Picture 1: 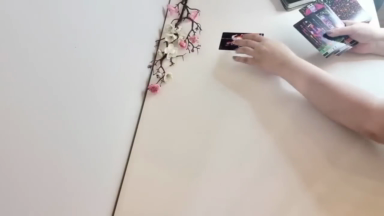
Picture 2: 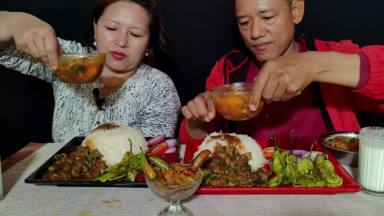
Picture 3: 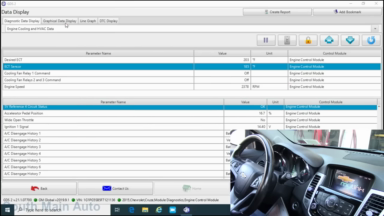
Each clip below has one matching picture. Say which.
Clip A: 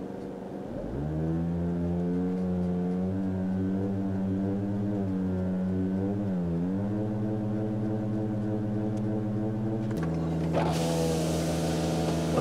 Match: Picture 3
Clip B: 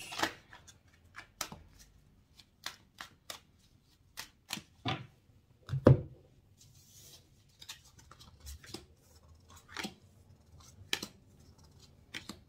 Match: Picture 1